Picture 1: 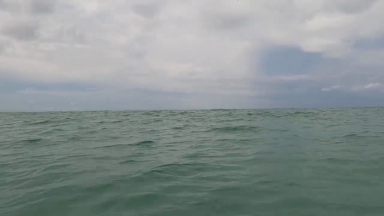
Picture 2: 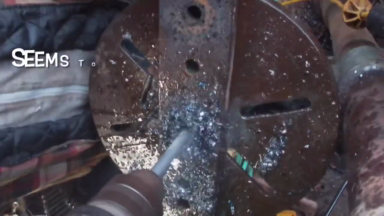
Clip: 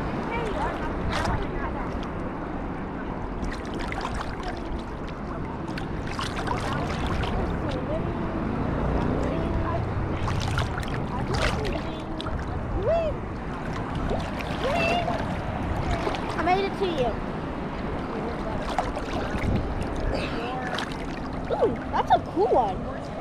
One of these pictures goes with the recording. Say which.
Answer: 1